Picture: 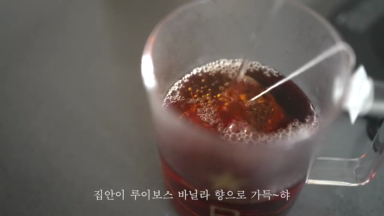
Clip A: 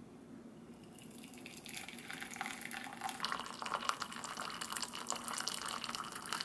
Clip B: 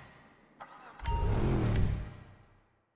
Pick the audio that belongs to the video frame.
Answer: A